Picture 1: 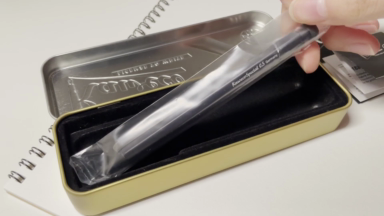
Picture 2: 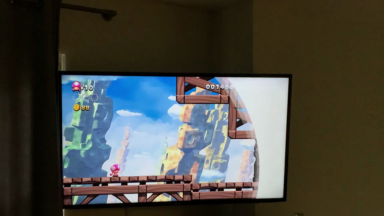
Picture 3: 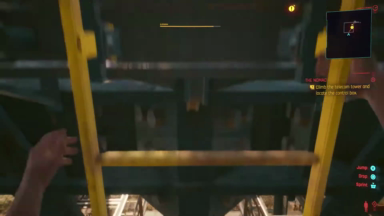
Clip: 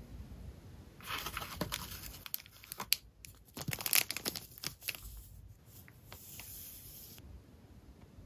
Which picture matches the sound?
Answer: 1